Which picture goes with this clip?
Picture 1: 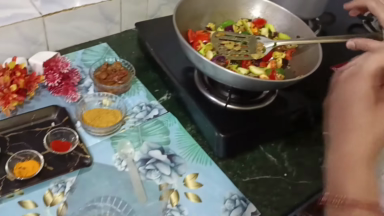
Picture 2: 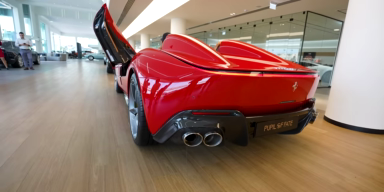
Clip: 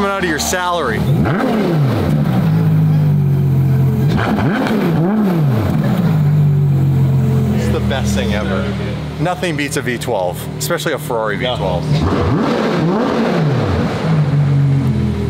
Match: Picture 2